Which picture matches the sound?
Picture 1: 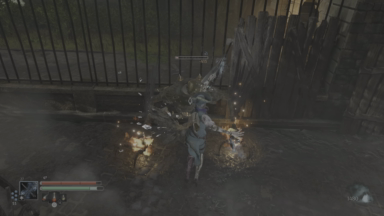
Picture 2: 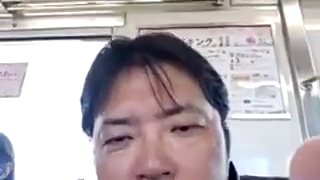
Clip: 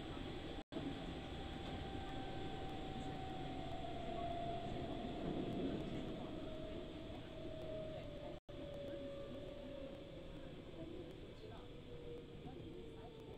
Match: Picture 2